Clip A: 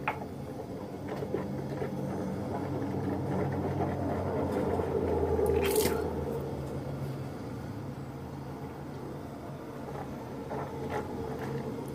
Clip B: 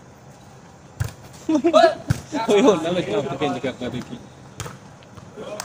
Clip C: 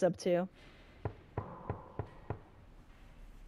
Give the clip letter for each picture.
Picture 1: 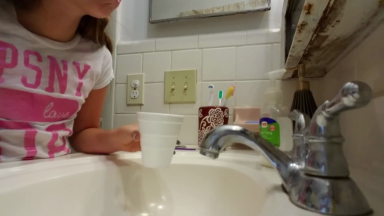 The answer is A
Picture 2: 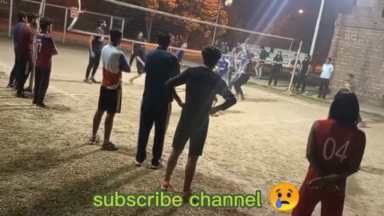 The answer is B